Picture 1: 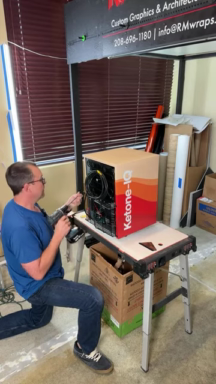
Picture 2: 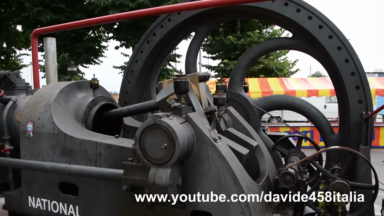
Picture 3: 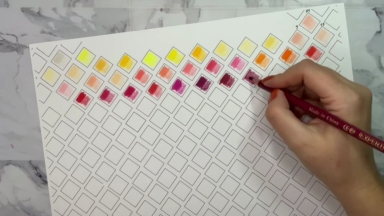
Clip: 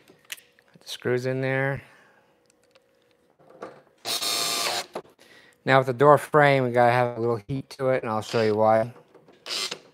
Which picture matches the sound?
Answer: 1